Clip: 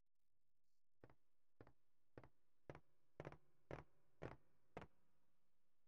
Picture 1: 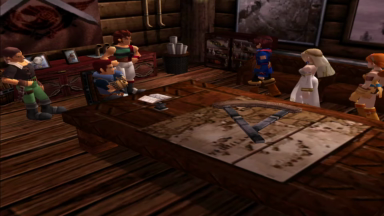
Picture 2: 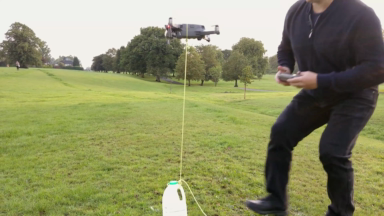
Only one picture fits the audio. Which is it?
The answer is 1